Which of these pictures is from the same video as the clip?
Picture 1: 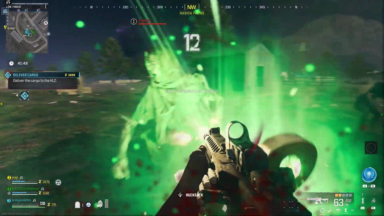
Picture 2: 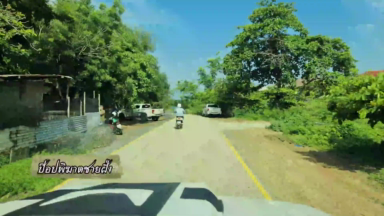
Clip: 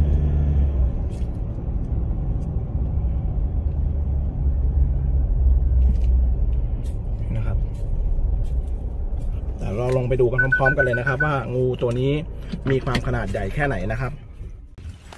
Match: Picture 2